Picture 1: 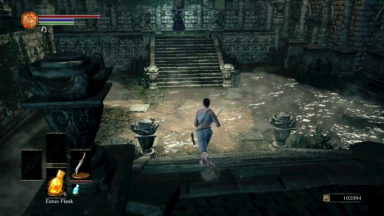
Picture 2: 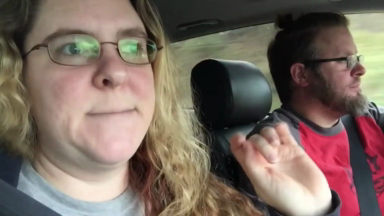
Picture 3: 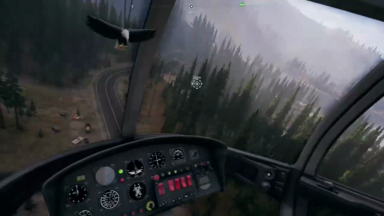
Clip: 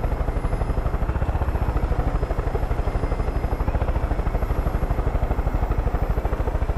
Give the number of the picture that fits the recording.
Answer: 3